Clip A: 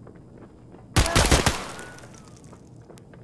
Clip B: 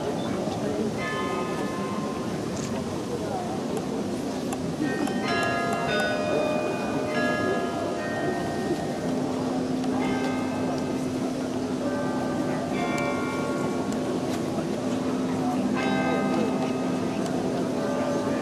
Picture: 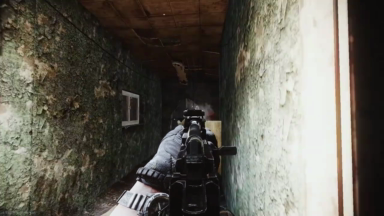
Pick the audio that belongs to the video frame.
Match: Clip A